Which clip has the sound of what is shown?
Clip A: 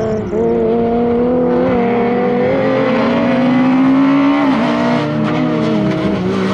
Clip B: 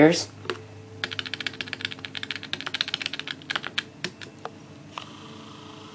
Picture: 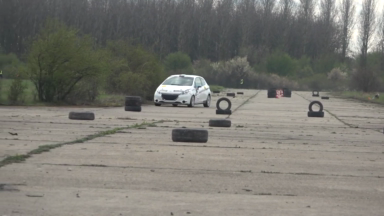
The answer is A